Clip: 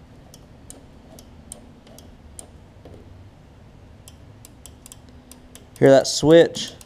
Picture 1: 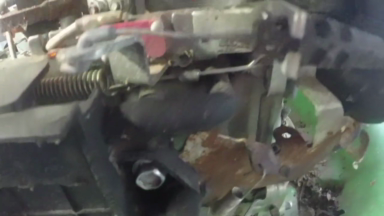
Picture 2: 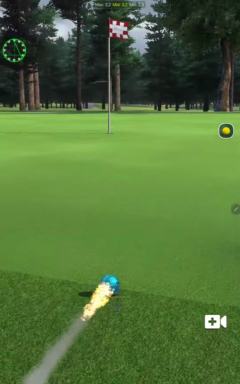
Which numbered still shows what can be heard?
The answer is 1